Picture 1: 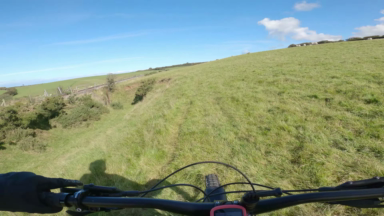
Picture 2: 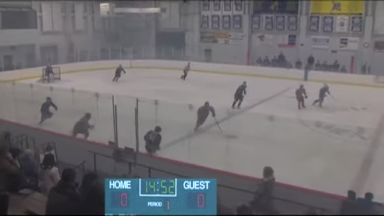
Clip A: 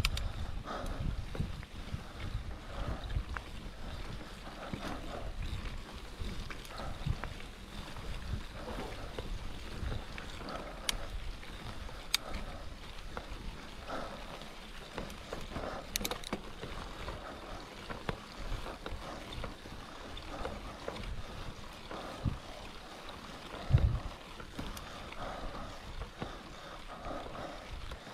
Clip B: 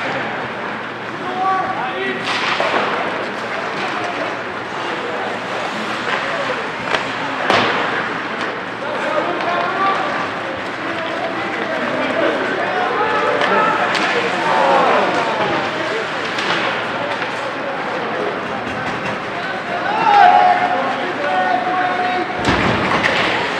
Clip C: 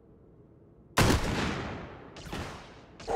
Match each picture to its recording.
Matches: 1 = A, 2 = B